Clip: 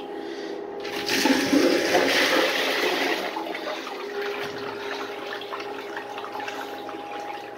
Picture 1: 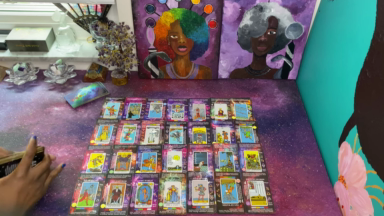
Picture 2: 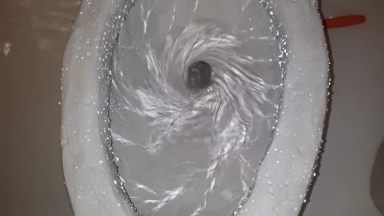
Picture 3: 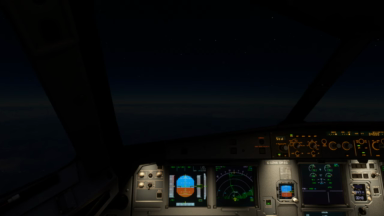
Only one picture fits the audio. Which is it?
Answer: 2